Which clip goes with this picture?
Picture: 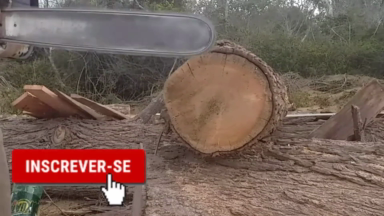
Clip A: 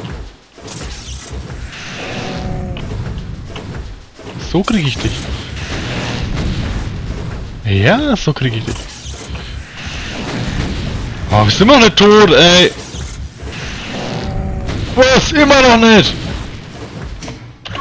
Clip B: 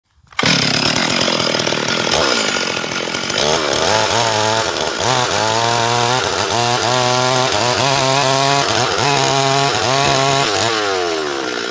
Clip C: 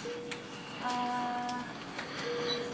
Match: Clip B